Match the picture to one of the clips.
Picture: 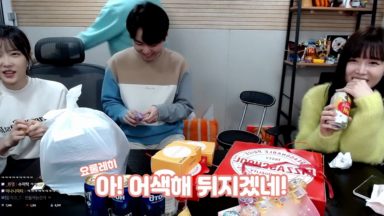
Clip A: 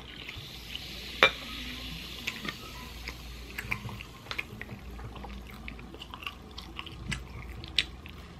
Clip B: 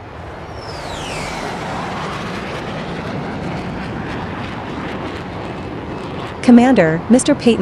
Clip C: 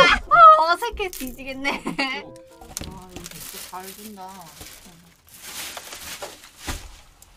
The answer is C